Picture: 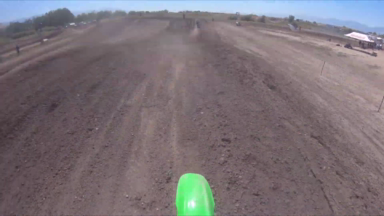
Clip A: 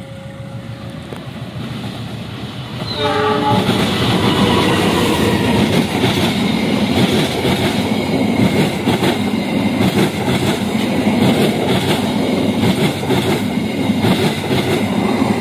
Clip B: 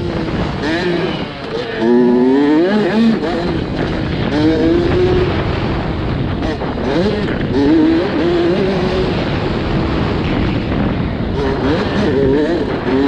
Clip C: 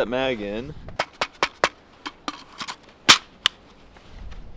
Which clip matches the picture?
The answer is B